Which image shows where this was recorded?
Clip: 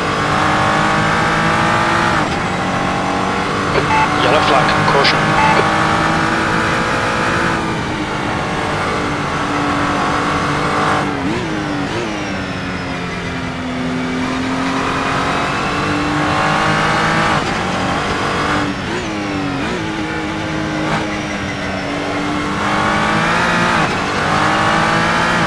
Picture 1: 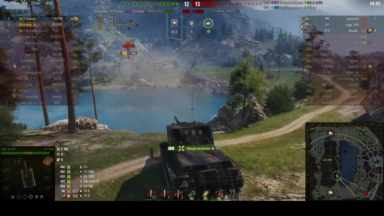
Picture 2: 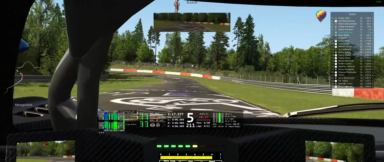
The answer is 2